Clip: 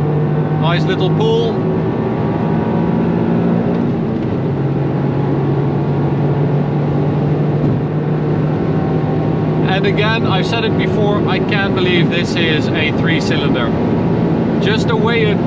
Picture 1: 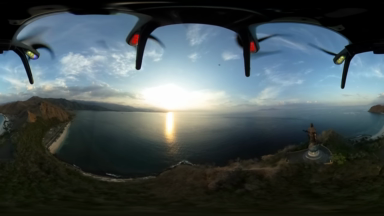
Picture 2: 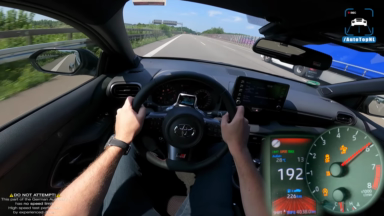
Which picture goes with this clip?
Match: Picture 2